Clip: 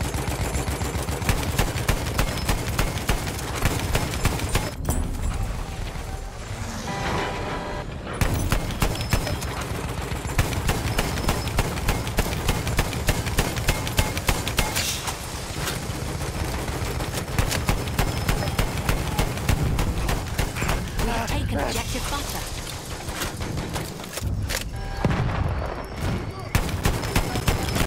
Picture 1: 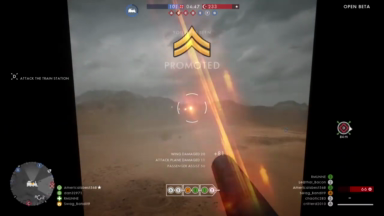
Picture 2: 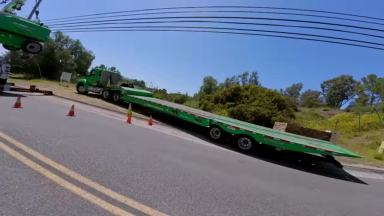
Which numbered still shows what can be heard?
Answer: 1